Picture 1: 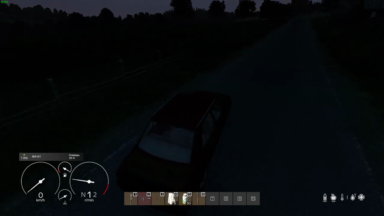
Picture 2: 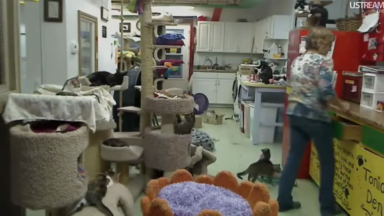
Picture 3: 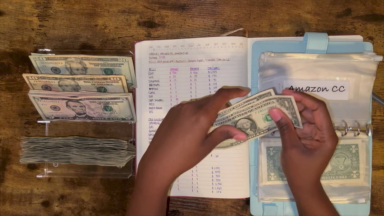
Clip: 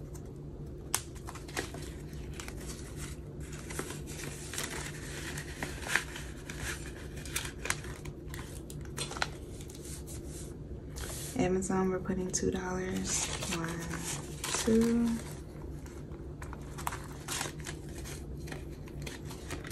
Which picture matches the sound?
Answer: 3